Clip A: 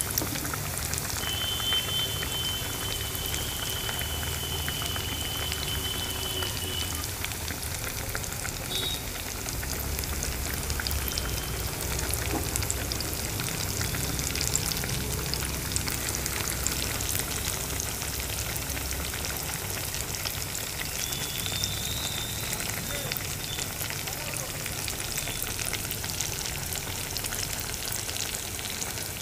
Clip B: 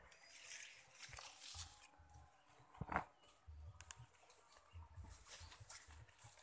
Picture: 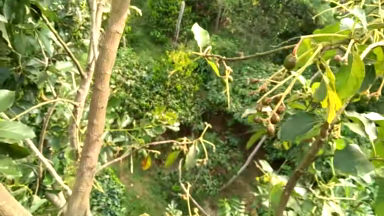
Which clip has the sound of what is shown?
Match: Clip B